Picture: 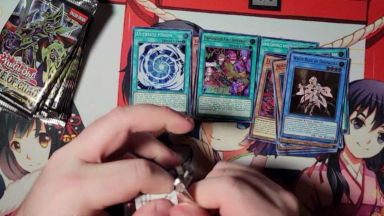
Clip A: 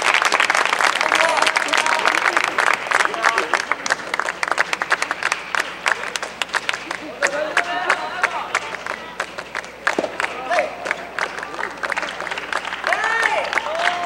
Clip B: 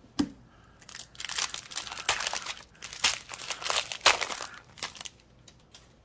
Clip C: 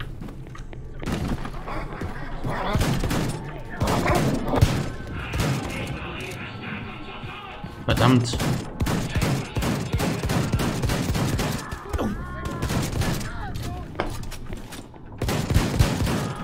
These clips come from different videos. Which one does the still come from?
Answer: B